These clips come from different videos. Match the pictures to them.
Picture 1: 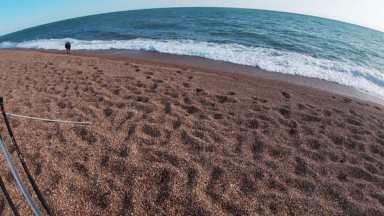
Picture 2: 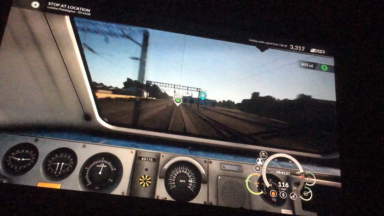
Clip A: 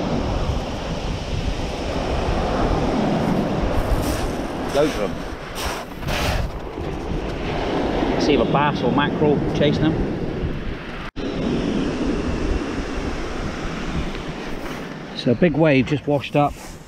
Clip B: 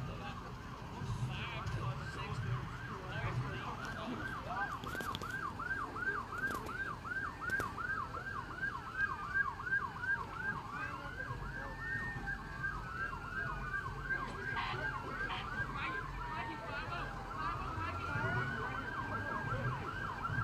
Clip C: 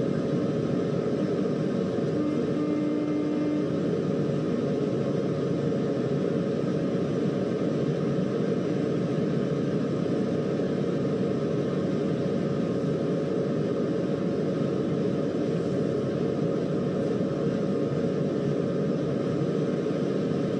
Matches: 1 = A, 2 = C